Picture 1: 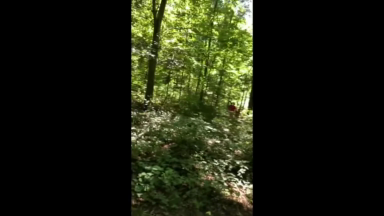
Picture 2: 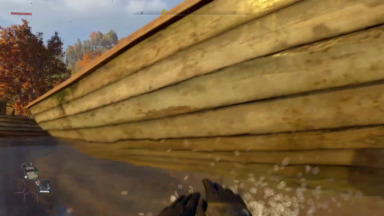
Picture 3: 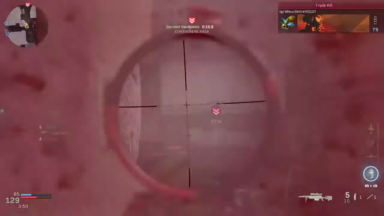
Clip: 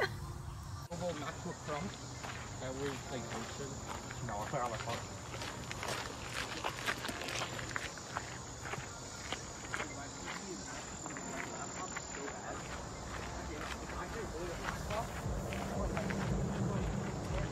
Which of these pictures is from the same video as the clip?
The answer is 1